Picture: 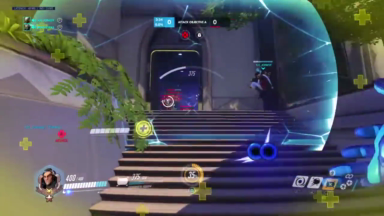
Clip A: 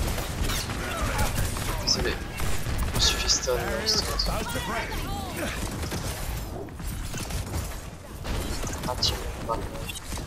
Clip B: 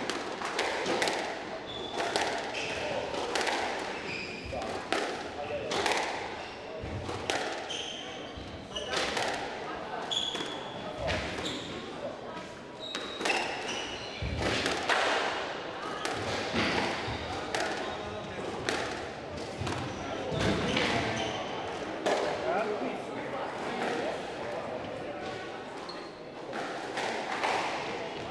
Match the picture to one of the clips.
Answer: A